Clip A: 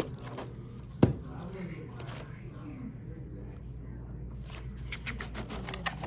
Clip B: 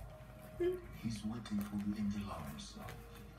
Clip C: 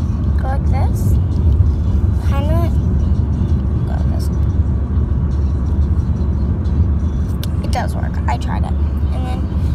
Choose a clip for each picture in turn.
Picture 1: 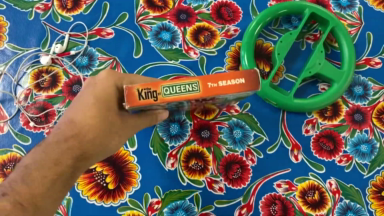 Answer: A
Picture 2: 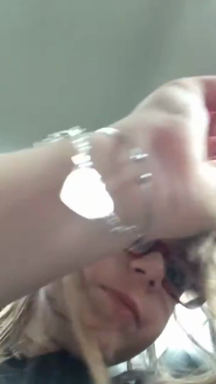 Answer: C